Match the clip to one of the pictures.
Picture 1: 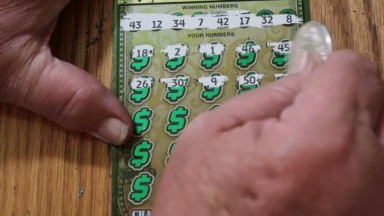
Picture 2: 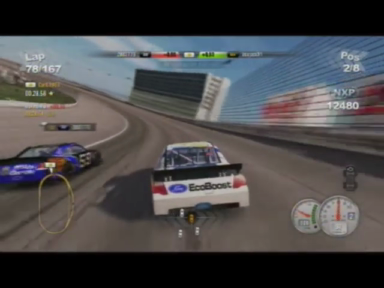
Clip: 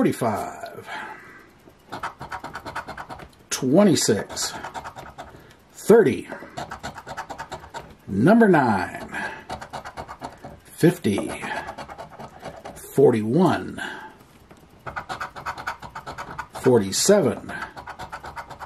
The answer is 1